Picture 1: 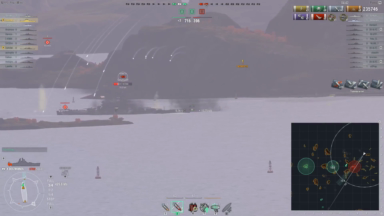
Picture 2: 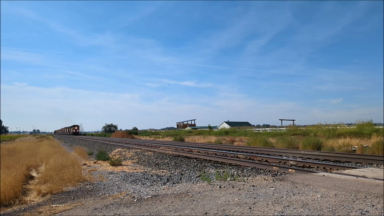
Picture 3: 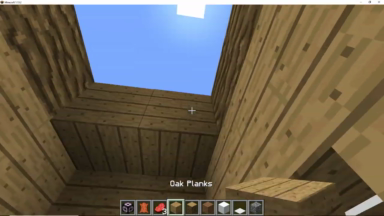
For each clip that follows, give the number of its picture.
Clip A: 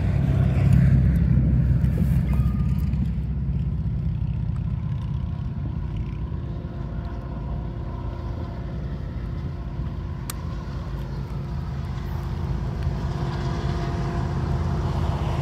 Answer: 2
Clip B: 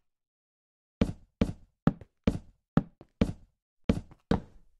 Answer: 3